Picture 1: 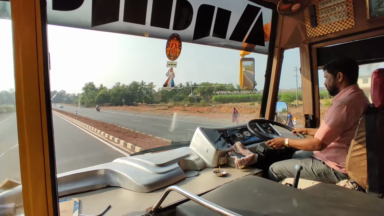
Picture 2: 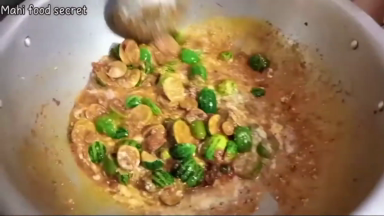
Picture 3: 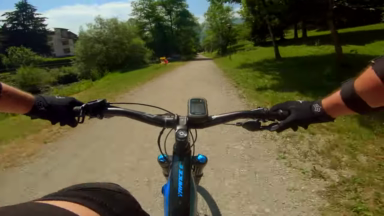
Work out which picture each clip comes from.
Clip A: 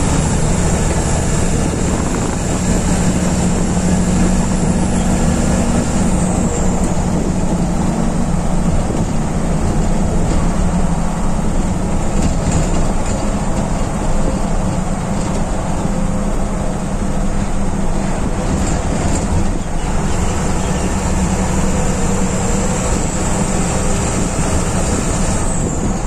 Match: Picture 1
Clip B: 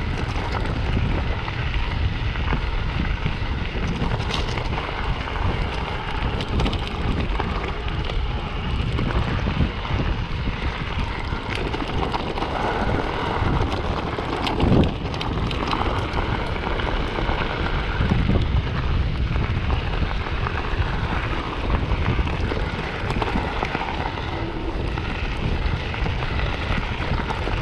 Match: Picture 3